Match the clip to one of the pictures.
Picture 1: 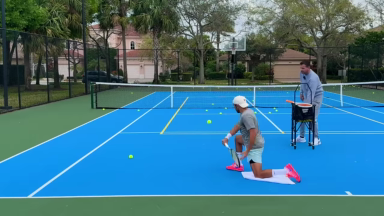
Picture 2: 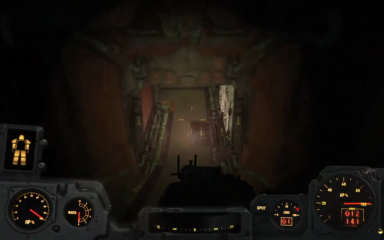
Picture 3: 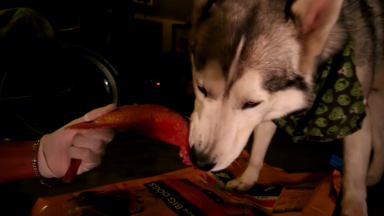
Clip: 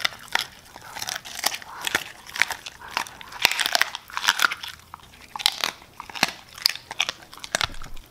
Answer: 3